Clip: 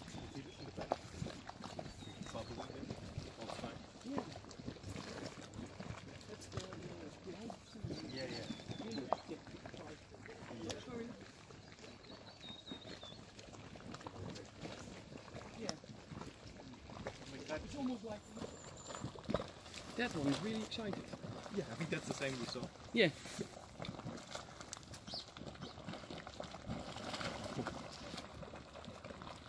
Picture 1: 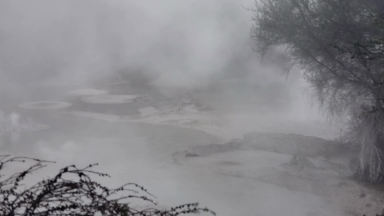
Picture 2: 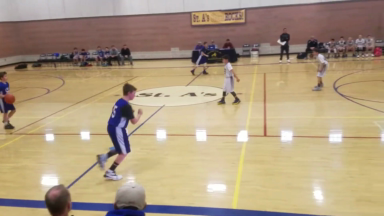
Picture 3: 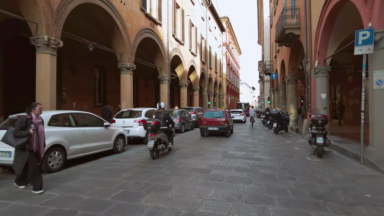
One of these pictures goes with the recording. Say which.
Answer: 1